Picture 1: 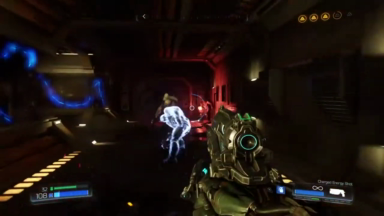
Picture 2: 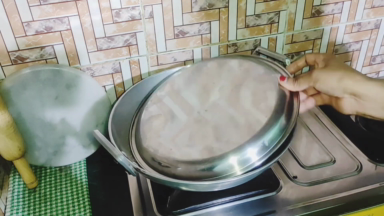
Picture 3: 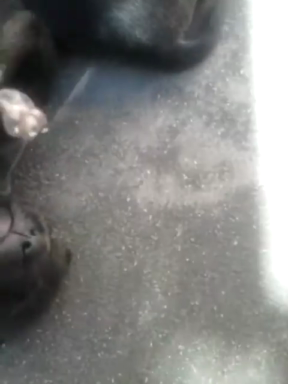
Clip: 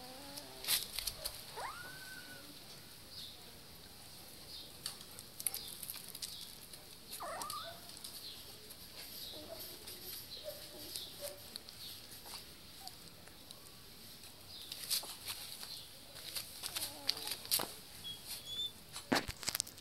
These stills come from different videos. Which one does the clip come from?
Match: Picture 3